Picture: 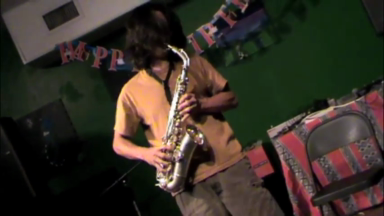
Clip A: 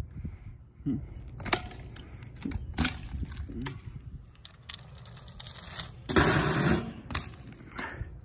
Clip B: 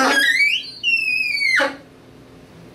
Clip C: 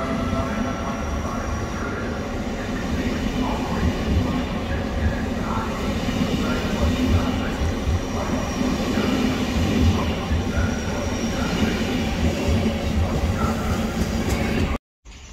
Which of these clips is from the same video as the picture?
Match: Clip B